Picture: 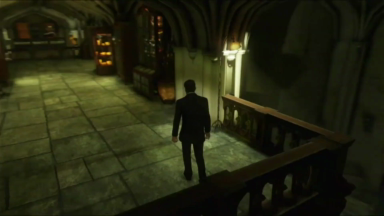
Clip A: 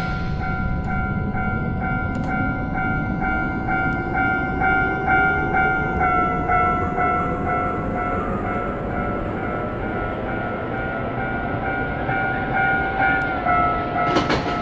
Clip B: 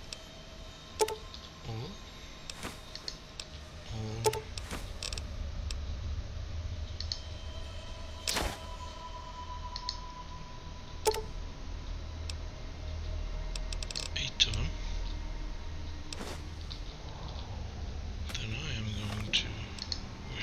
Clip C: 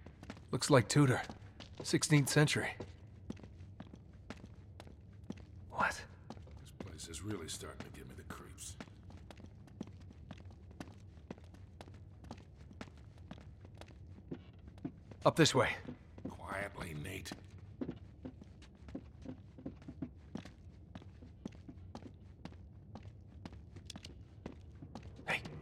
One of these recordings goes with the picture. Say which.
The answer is C